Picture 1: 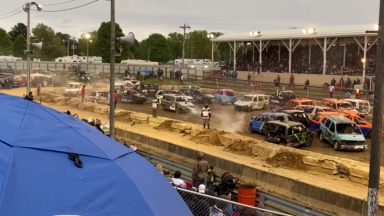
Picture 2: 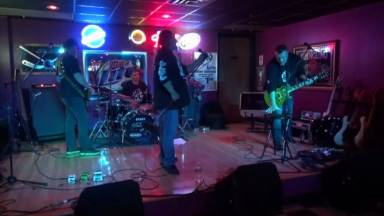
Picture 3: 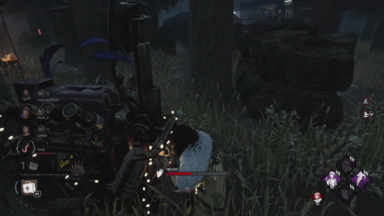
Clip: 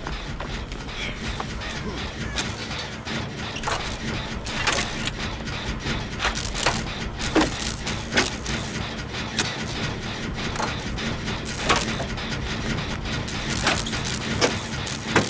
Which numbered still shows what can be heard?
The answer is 3